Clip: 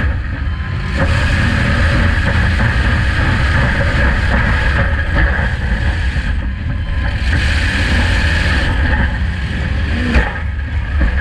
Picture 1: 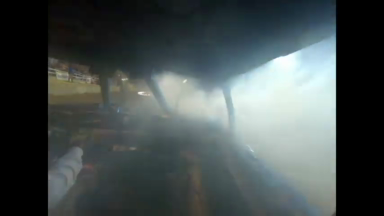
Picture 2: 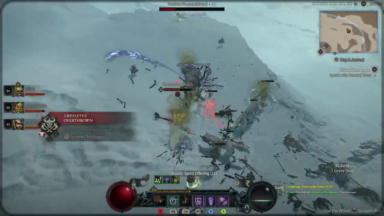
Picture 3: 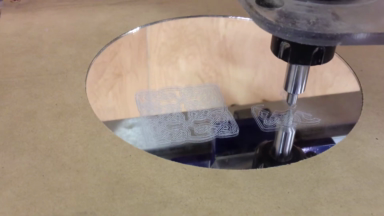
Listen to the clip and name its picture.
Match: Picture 1